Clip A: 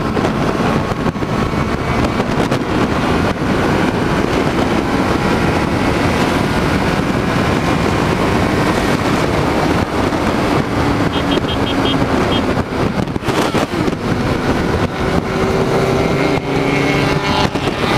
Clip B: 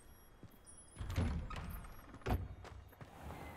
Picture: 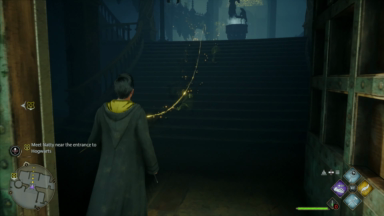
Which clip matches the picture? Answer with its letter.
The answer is B